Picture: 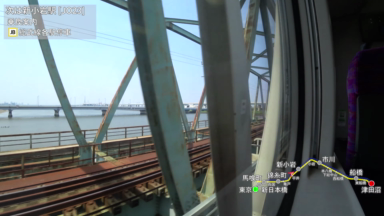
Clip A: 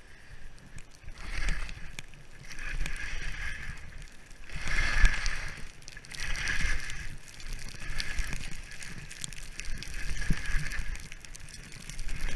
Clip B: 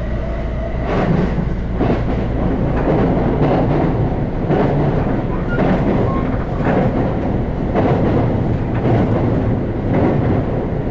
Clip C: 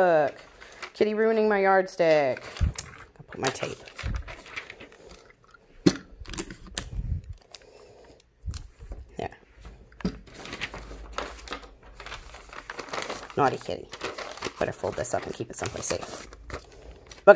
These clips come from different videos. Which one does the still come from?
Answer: B